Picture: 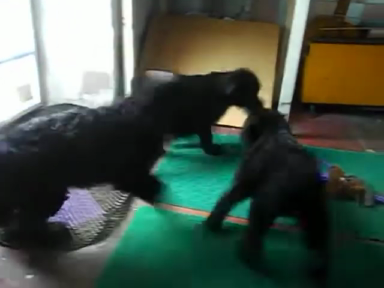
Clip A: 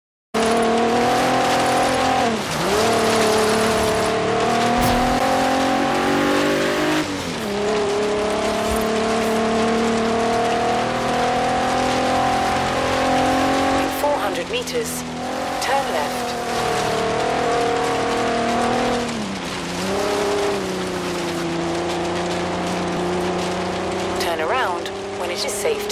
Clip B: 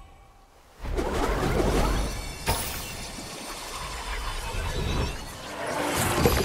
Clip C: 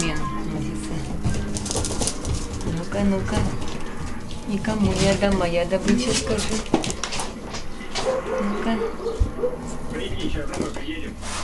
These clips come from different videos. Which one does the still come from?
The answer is C